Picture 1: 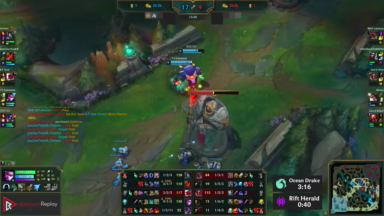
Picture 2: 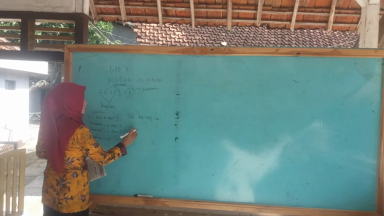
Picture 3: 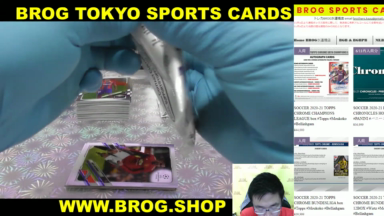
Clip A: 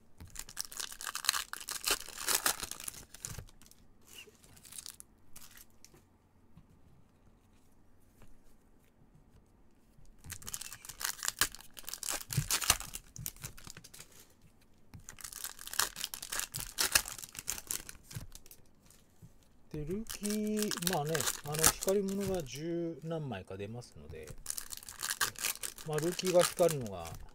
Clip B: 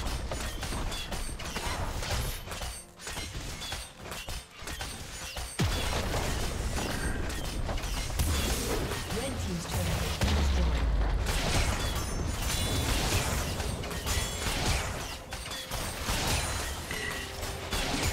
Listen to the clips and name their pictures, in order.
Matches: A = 3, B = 1